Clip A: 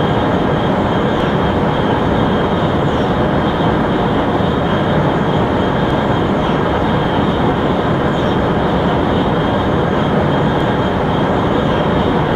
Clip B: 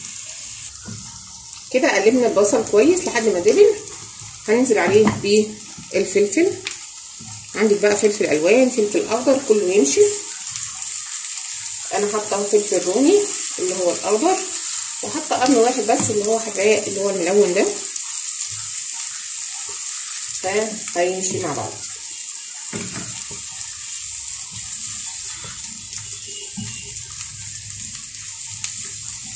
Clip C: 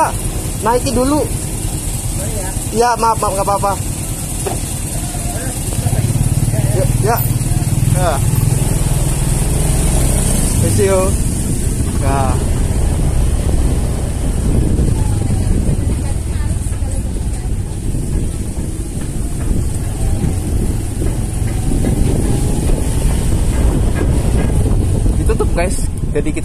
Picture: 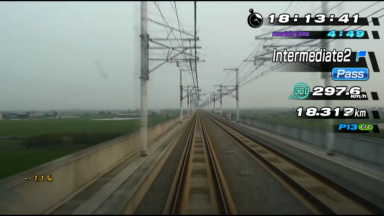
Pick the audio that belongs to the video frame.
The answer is A